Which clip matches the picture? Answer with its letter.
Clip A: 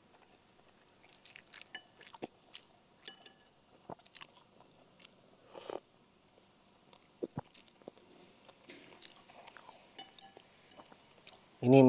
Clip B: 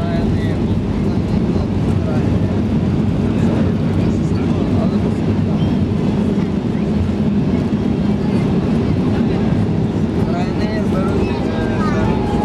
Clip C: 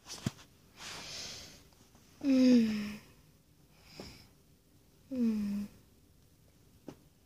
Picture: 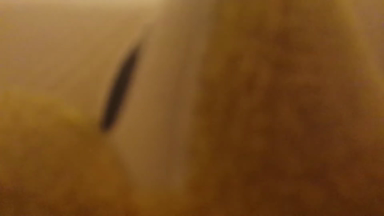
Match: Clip C